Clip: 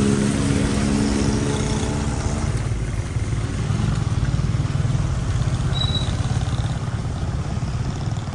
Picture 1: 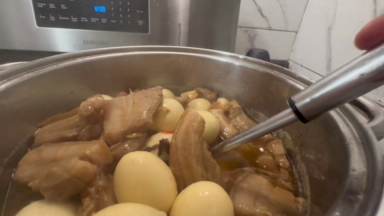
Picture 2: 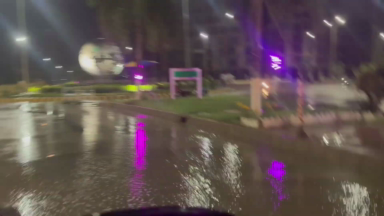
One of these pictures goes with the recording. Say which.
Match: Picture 2